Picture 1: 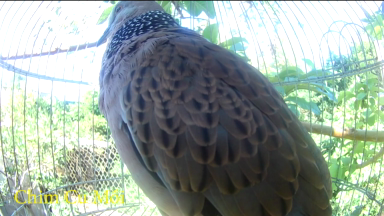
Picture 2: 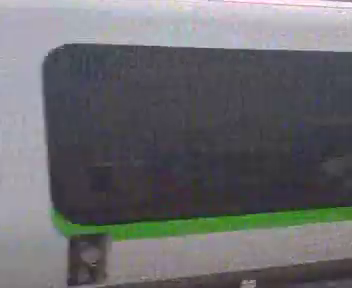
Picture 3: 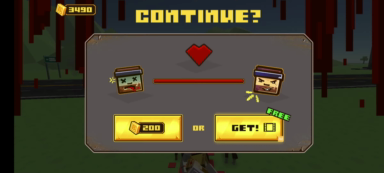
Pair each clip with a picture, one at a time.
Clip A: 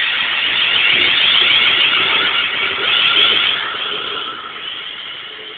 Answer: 2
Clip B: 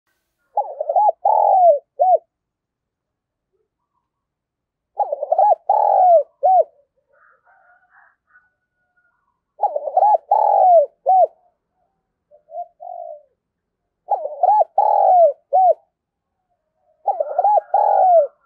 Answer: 1